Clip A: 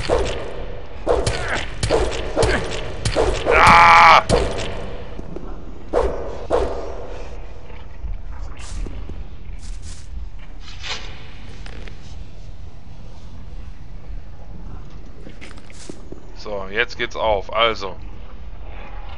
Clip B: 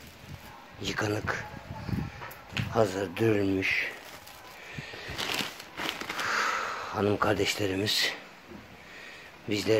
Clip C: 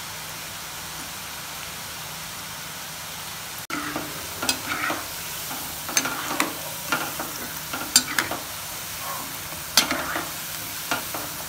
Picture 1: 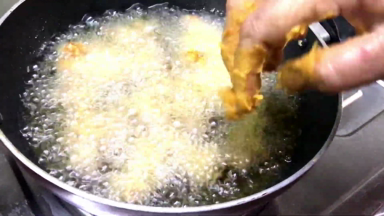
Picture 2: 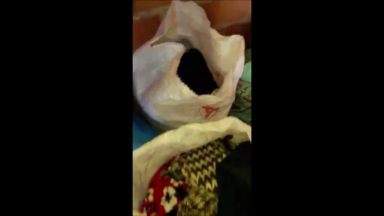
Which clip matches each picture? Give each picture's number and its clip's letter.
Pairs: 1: C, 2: B